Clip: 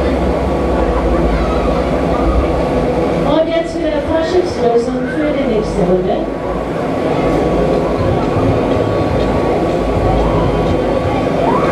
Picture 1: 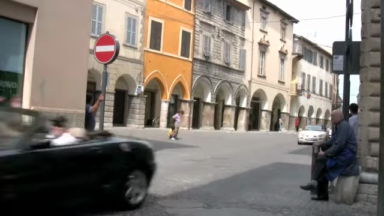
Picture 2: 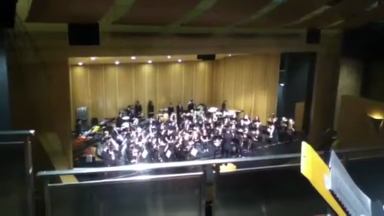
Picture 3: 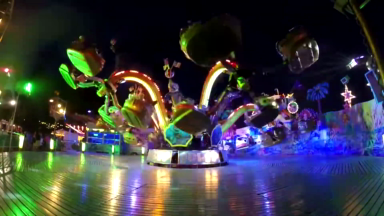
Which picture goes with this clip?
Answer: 3